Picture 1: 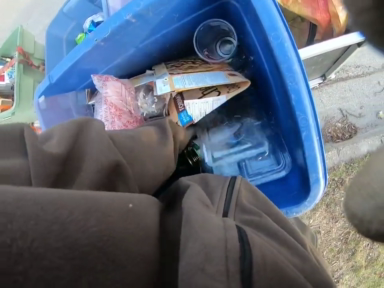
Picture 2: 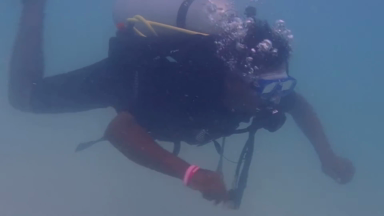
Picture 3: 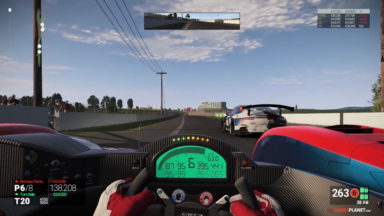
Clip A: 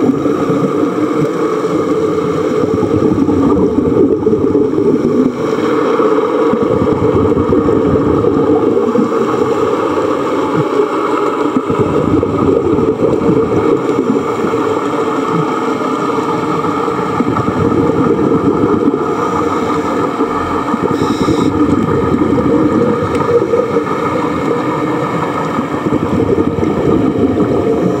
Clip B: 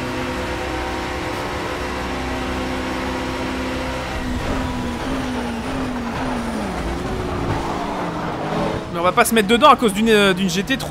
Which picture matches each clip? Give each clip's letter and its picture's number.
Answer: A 2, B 3